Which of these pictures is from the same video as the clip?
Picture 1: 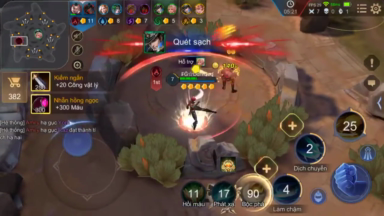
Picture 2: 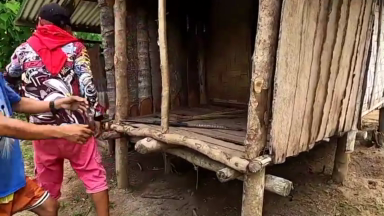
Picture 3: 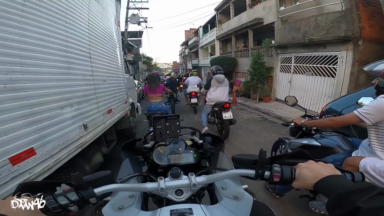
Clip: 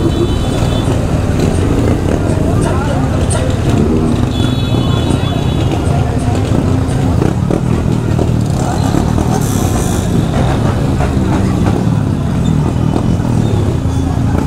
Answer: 3